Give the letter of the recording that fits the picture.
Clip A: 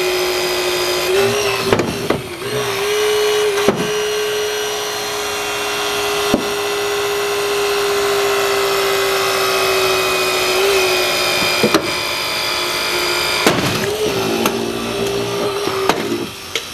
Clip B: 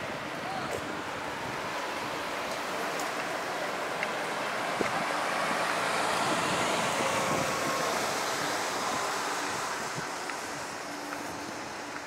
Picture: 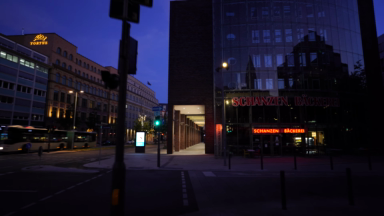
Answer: B